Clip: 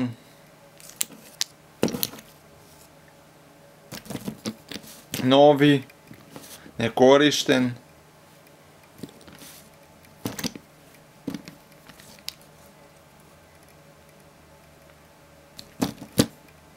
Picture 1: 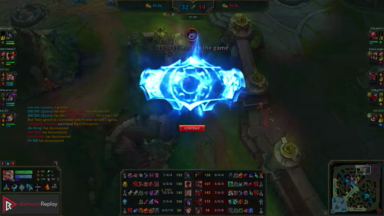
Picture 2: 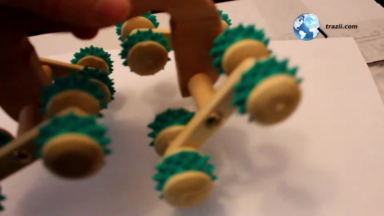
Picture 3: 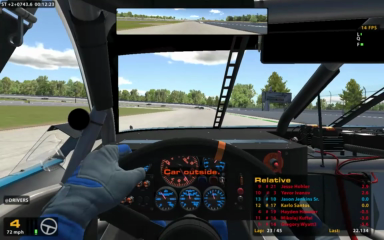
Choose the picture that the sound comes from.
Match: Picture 2